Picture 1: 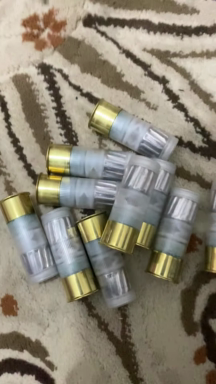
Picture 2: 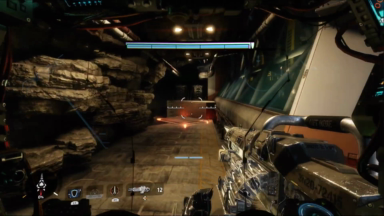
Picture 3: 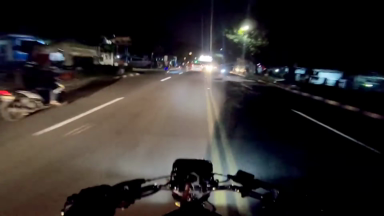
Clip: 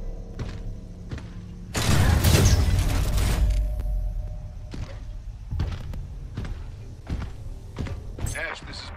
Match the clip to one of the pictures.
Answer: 2